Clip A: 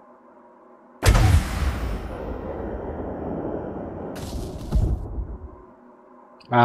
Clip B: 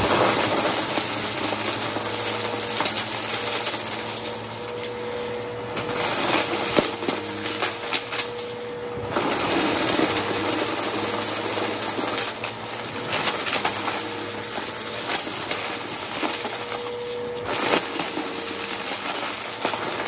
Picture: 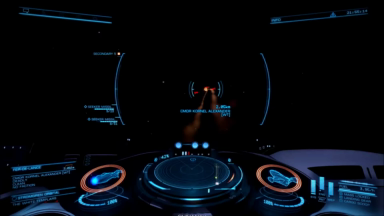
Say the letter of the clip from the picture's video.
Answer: A